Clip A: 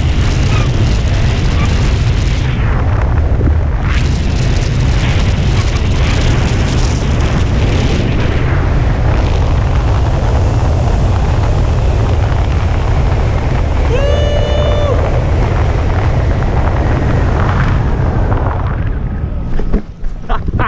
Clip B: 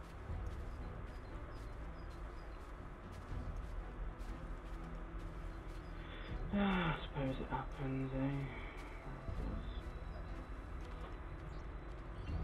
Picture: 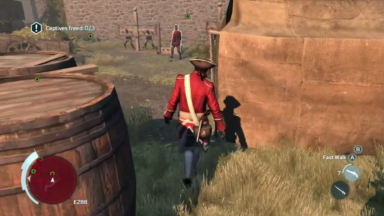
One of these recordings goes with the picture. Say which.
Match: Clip B